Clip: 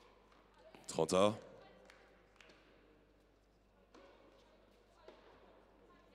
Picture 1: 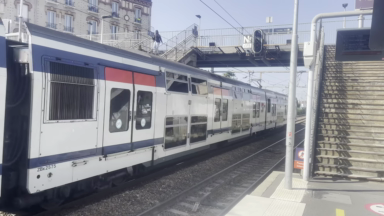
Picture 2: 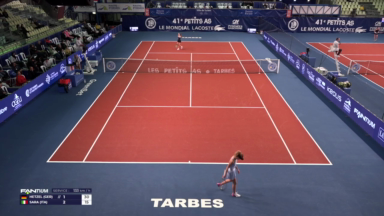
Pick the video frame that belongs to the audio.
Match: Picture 2